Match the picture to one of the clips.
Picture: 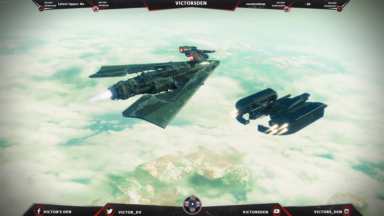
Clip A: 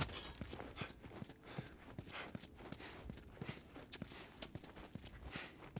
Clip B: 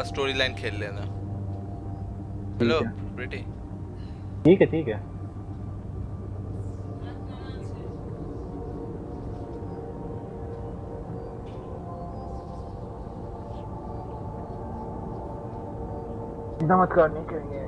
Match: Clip B